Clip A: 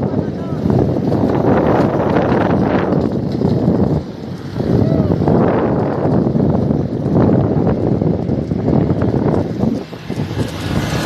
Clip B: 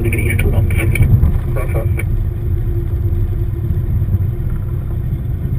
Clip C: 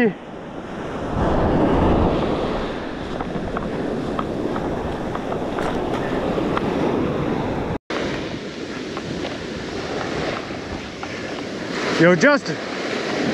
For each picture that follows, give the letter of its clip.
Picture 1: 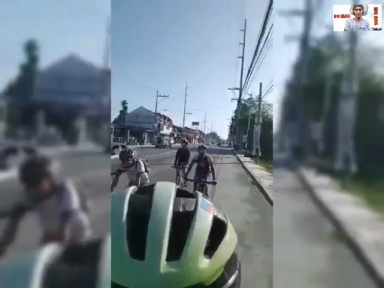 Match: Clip A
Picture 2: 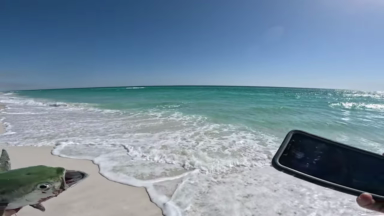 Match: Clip C